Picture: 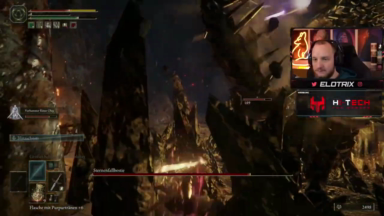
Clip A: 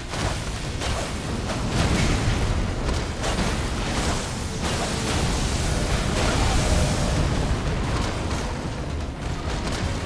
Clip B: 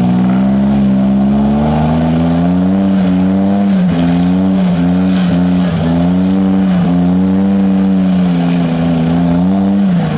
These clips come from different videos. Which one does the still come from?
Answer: A